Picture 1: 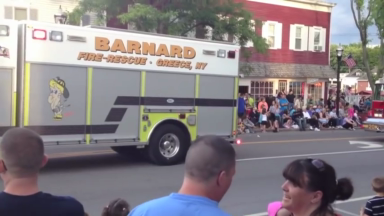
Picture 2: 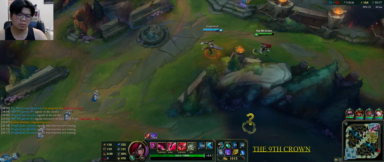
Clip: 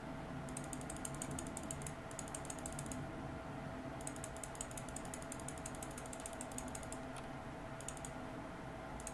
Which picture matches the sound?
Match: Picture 2